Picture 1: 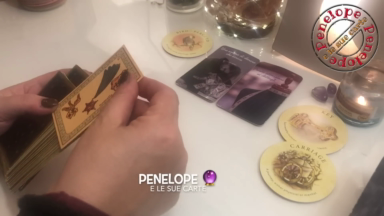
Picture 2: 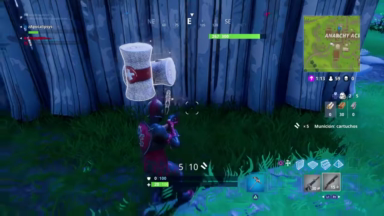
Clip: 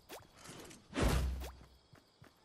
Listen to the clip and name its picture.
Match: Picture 2